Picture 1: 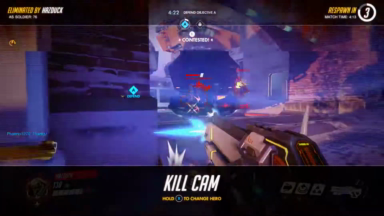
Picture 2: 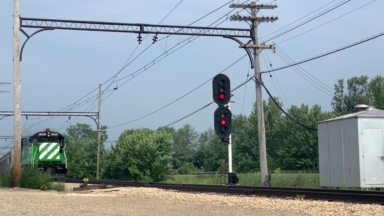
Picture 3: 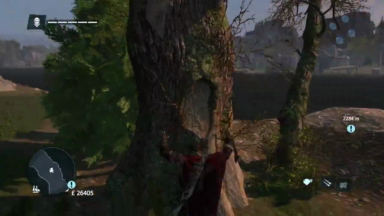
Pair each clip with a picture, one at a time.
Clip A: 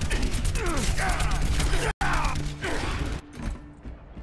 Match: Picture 1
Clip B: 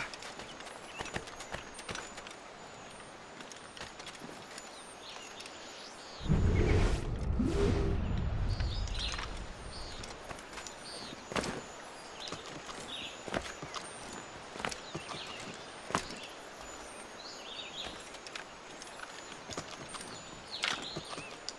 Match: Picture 3